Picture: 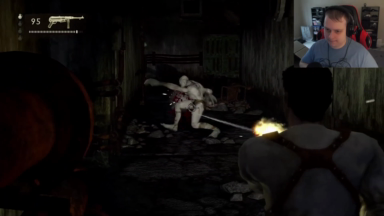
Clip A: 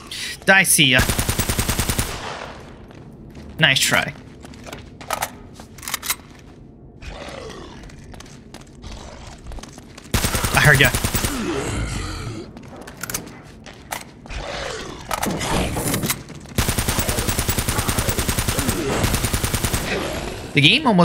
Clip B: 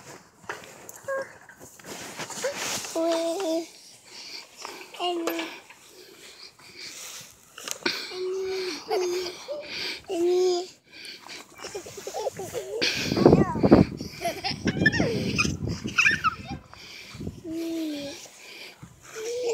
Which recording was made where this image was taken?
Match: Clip A